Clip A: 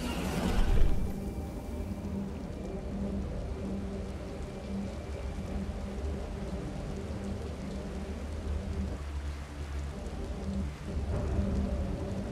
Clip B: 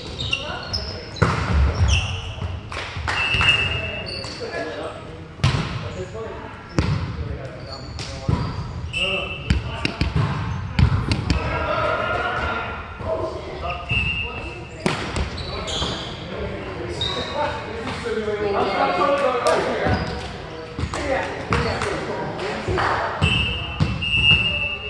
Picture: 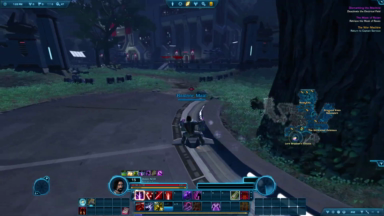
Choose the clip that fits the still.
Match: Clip A